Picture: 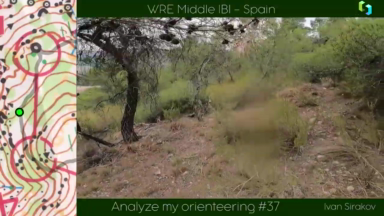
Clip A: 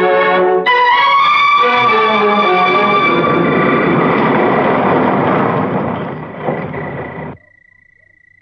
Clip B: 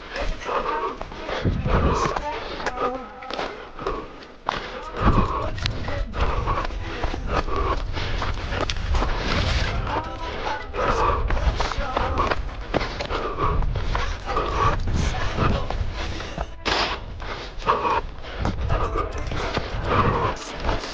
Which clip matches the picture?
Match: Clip B